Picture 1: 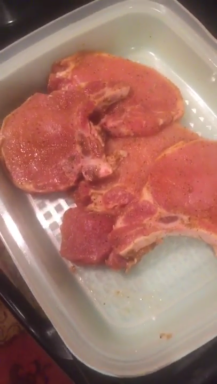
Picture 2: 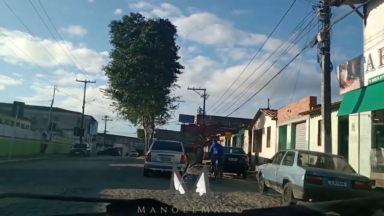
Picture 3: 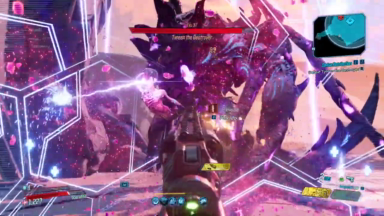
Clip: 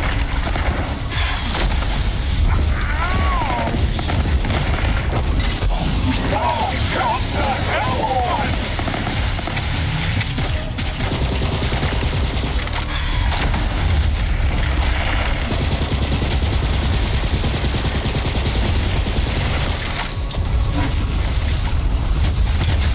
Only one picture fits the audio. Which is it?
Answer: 3